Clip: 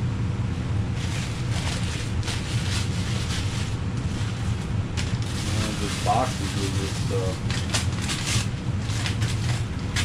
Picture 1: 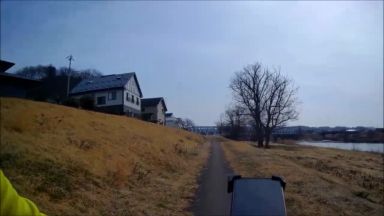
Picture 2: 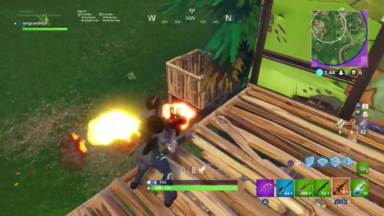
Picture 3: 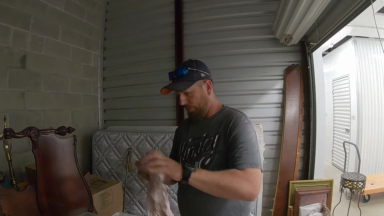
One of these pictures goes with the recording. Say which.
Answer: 3